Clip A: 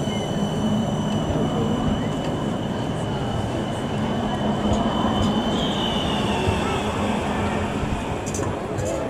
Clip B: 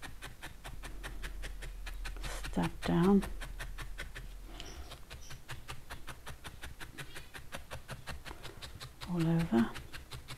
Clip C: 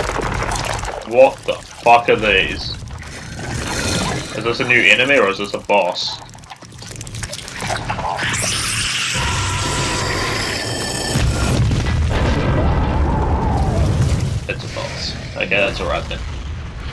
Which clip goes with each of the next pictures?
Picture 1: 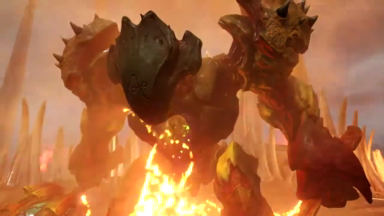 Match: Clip C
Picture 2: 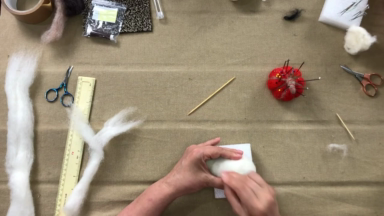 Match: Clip B